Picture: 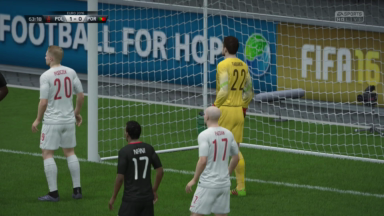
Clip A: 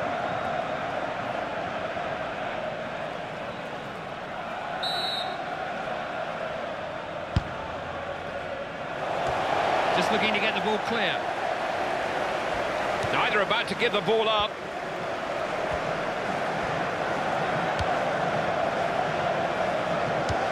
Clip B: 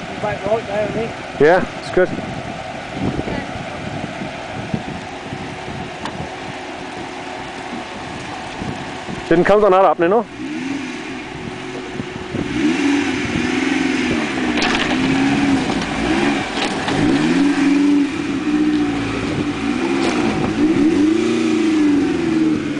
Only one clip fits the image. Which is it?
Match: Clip A